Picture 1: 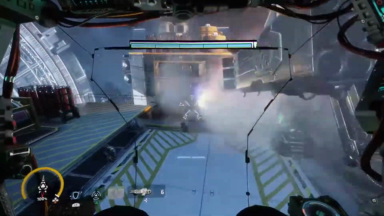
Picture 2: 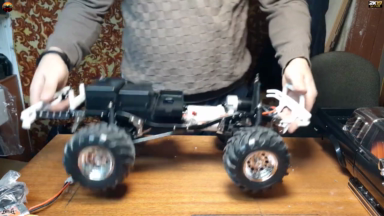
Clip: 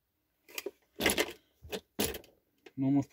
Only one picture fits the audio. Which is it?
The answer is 2